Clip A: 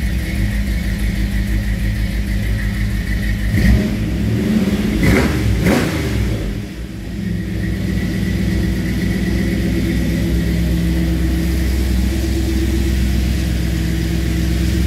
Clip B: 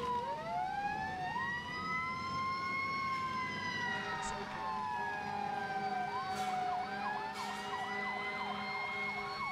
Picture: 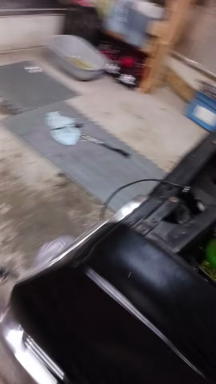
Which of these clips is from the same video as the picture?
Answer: A